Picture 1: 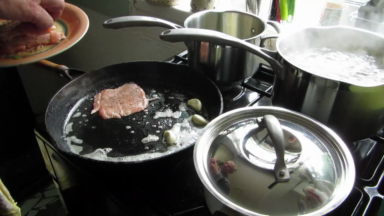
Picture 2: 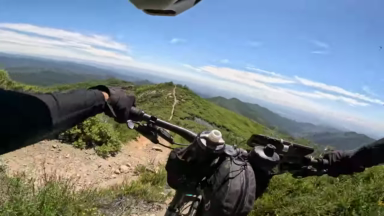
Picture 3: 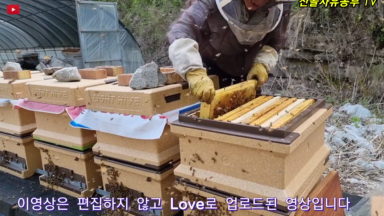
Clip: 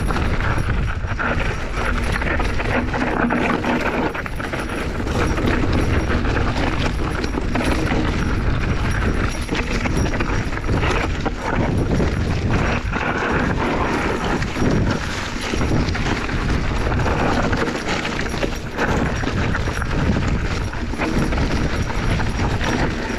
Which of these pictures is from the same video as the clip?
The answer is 2